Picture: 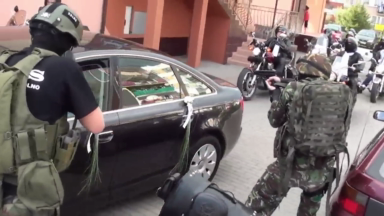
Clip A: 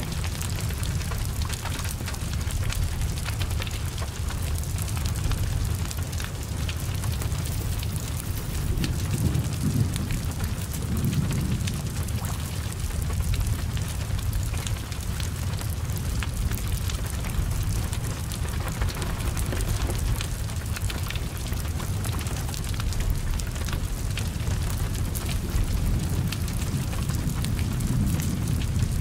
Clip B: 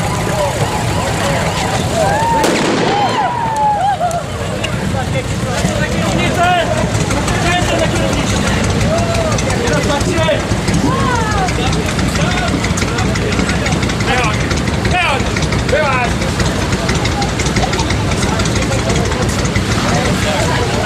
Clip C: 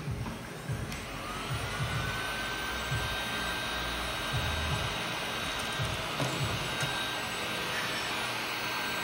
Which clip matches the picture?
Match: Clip B